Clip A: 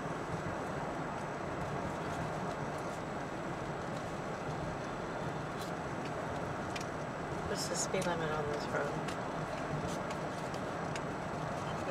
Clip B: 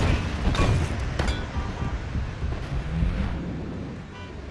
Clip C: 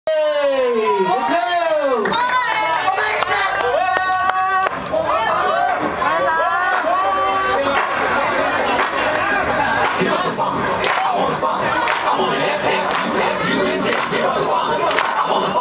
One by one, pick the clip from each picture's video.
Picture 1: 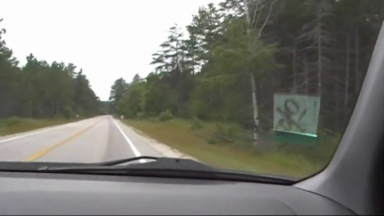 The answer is A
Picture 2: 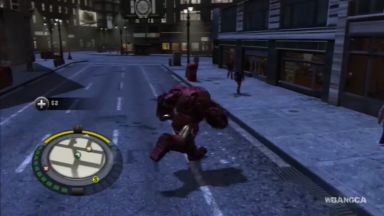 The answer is B